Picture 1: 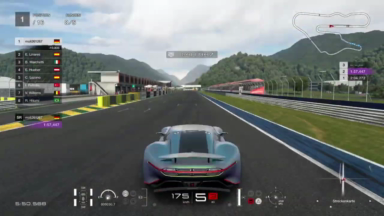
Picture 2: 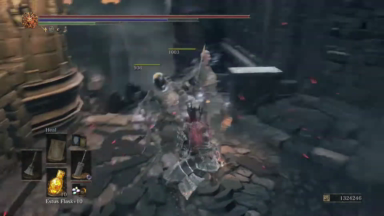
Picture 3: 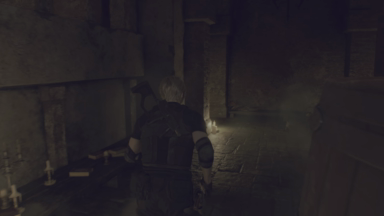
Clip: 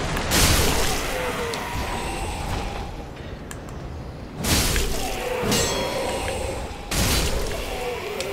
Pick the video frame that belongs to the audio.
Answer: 2